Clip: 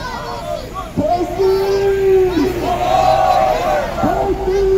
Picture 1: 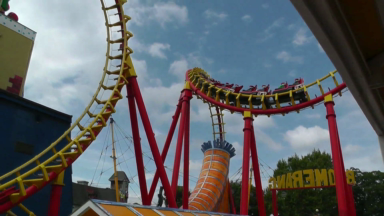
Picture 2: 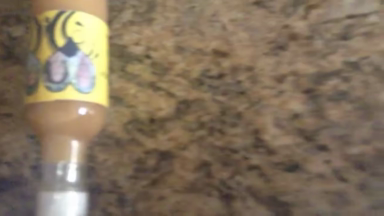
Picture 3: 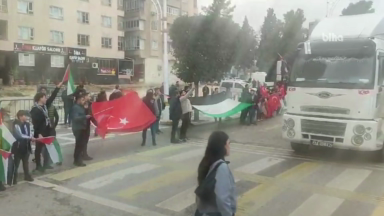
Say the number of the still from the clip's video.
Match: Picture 3